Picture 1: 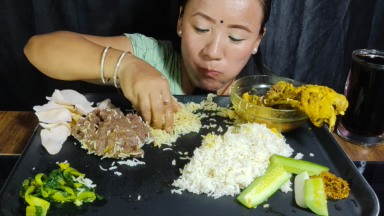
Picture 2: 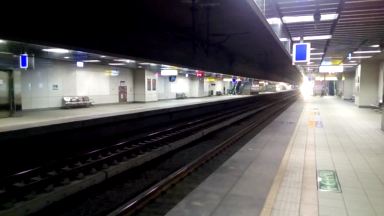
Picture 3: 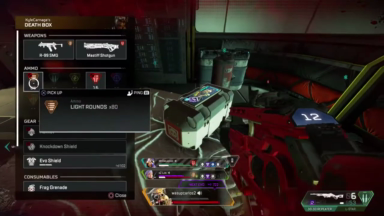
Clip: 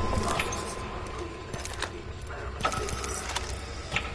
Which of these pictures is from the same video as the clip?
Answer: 3